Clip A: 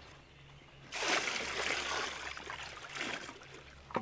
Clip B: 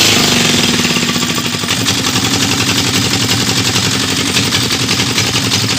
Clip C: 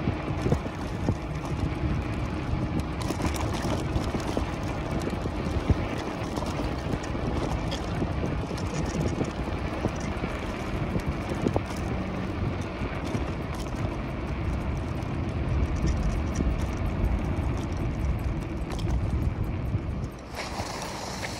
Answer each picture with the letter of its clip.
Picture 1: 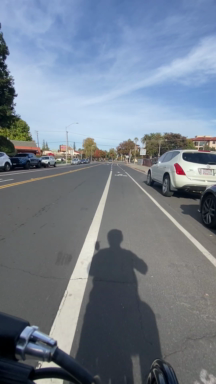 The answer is C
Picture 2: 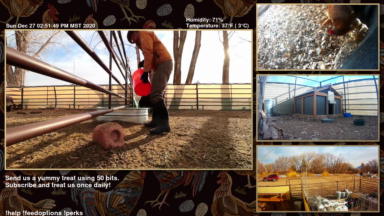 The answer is A